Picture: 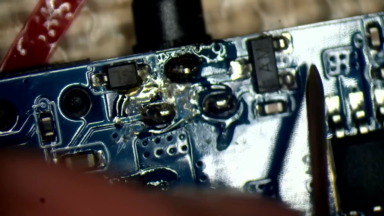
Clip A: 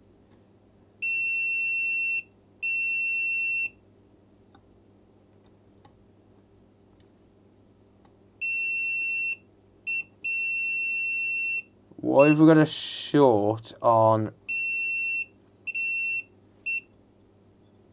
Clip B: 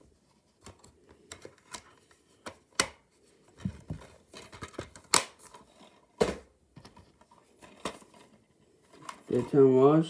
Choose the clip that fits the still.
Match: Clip A